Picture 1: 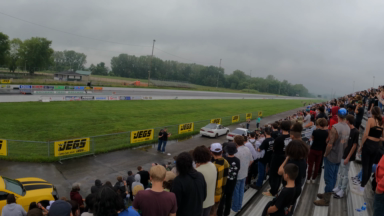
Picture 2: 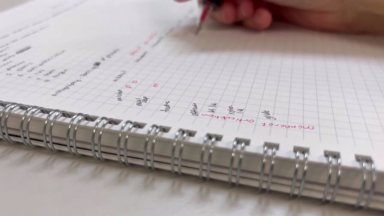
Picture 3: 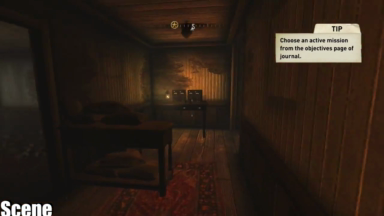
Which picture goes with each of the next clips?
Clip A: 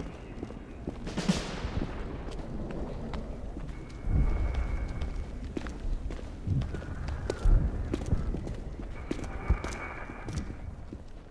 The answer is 3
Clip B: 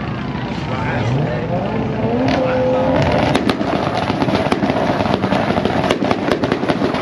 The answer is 1